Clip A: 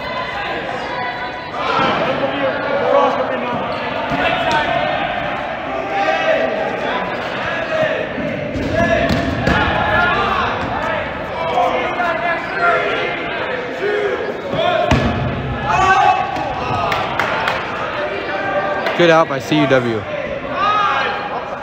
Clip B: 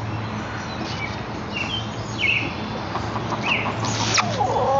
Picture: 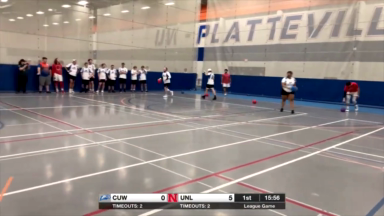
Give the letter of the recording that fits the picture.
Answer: A